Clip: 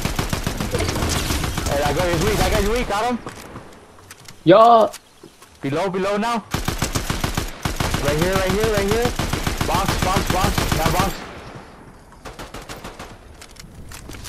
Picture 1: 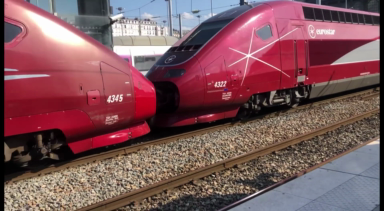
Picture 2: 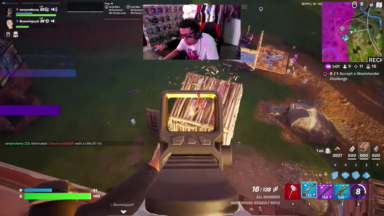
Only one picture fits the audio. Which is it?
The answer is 2